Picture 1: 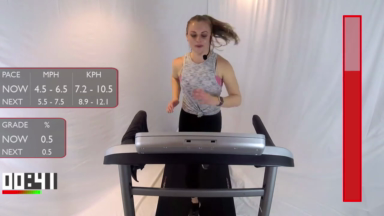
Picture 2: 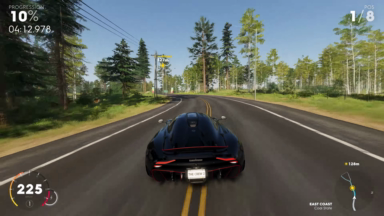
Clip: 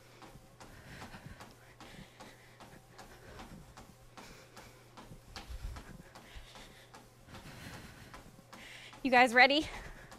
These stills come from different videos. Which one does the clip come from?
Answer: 1